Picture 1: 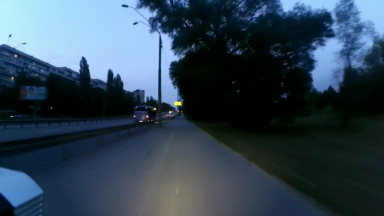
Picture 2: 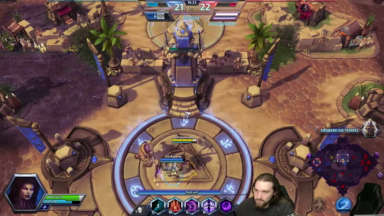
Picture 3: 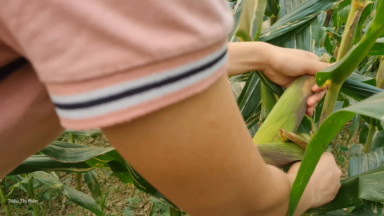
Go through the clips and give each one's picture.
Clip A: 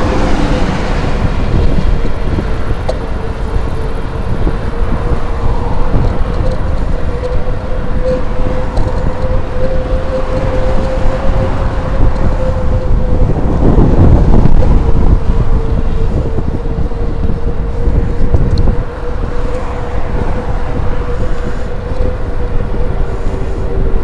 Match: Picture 1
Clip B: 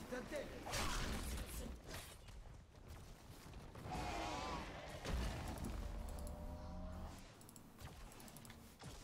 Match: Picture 2